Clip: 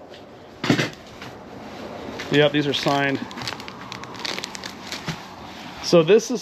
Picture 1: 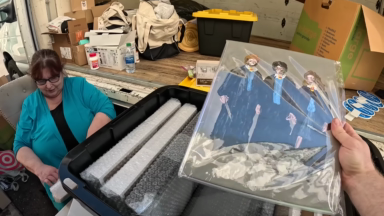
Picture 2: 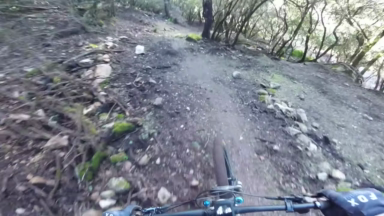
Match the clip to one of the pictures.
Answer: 1